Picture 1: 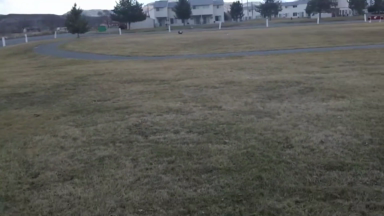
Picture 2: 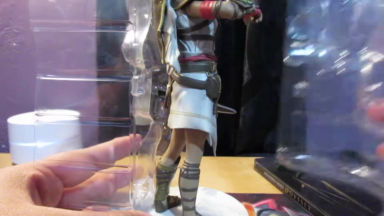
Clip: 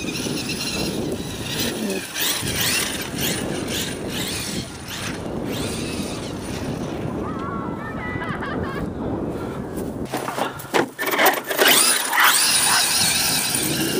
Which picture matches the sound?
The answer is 1